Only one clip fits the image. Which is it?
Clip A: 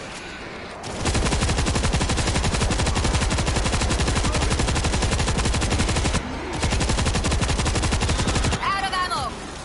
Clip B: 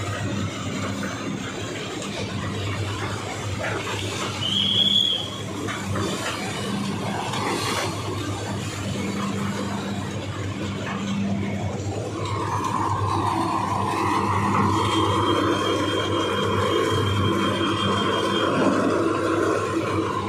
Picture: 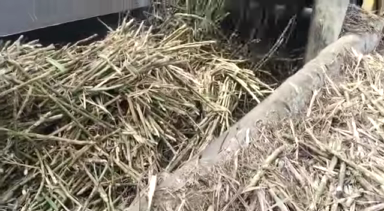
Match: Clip B